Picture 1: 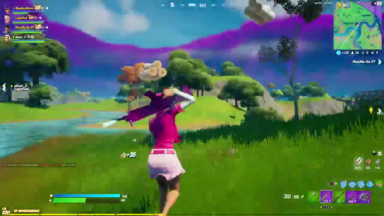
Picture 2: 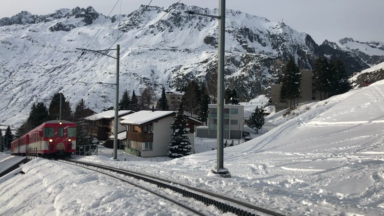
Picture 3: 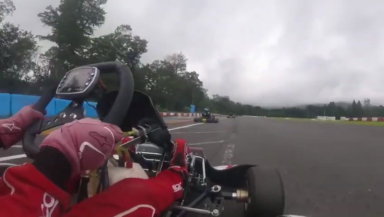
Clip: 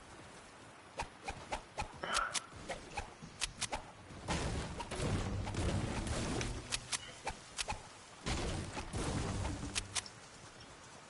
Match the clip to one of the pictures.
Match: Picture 1